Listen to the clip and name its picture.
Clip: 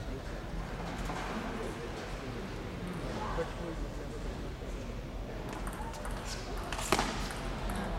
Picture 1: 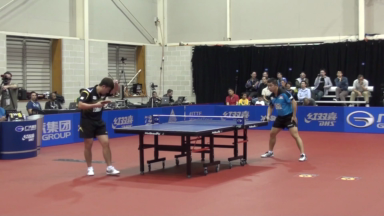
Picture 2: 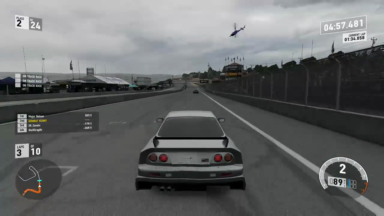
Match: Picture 1